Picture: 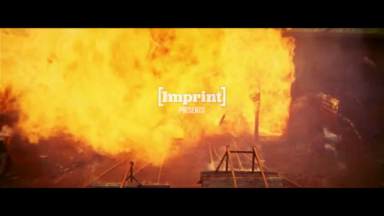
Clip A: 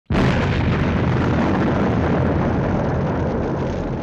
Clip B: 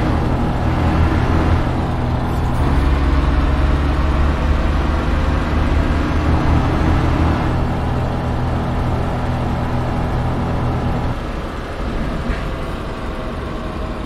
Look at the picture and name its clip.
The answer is A